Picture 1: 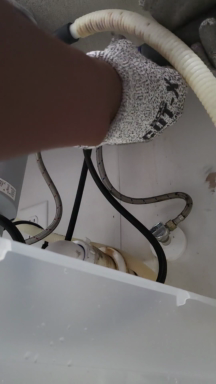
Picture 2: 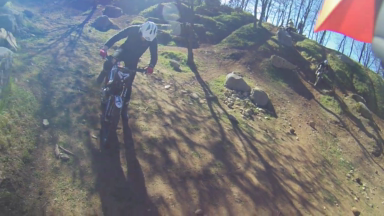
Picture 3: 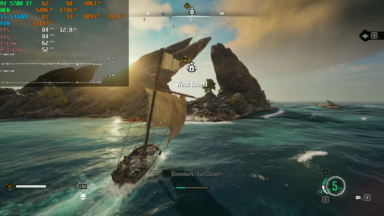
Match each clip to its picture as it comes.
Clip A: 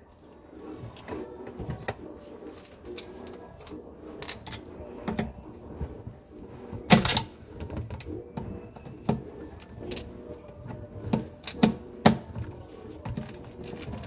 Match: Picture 1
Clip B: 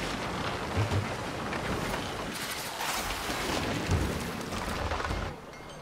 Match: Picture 3